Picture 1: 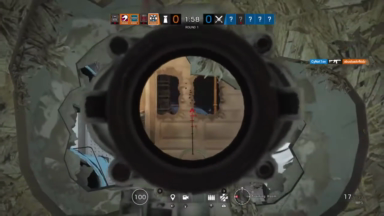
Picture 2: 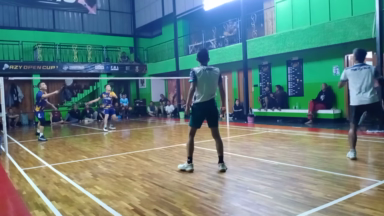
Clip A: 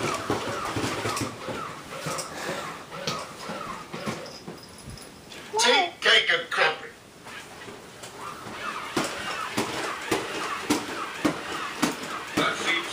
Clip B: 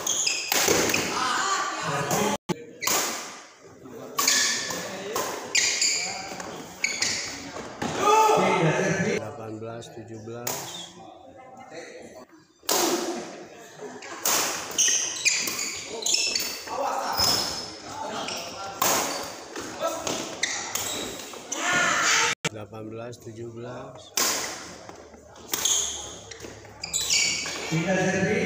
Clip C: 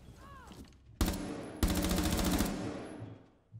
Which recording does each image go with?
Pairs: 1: C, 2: B